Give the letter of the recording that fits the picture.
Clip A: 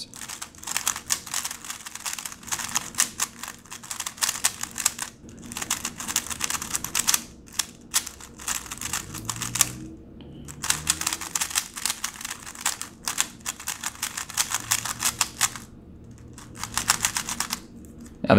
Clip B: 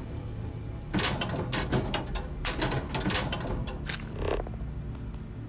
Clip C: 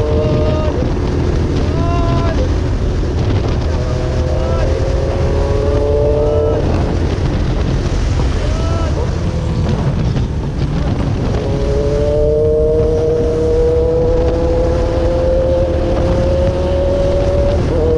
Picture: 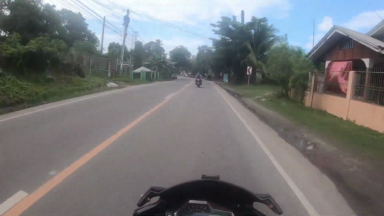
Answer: C